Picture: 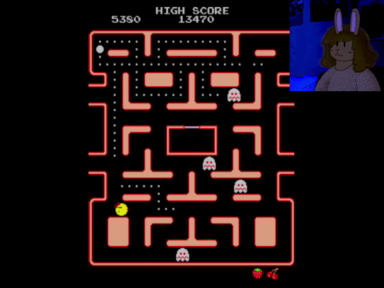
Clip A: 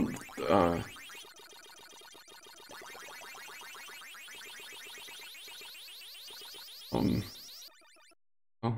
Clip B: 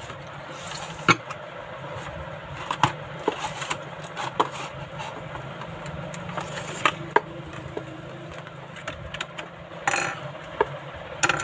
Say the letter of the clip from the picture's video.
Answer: A